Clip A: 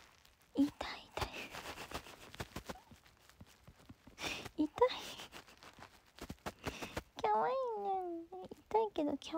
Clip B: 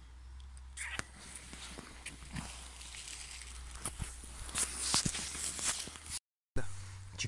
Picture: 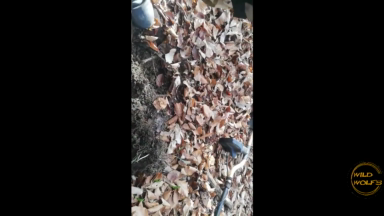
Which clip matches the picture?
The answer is B